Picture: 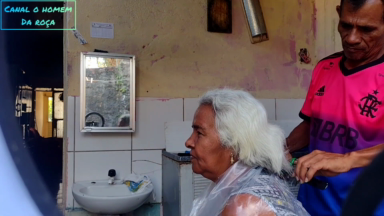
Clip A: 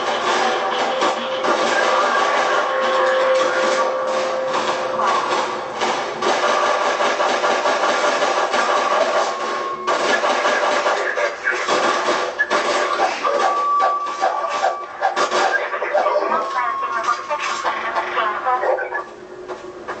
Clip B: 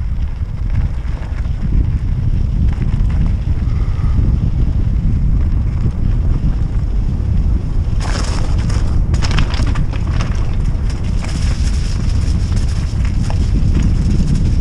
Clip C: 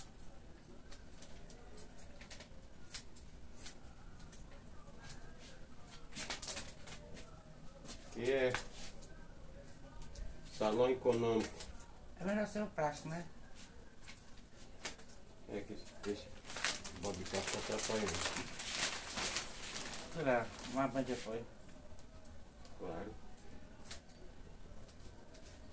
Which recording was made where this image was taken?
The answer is C